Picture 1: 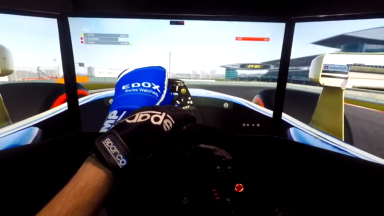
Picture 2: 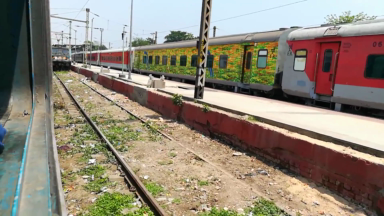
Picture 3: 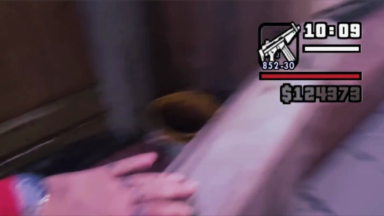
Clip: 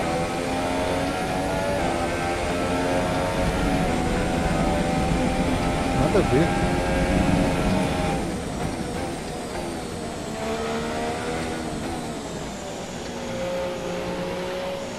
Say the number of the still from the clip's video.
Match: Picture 1